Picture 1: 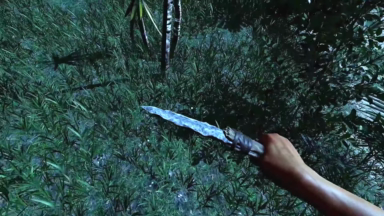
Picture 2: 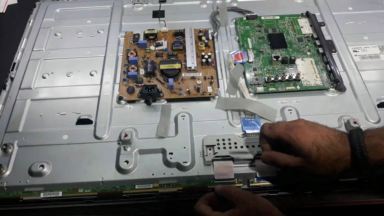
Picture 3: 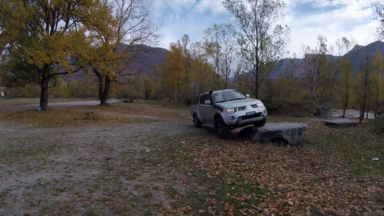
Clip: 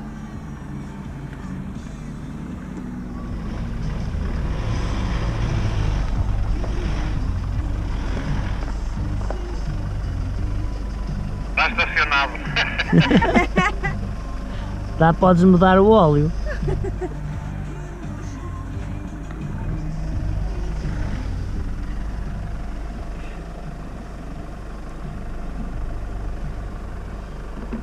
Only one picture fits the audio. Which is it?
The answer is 3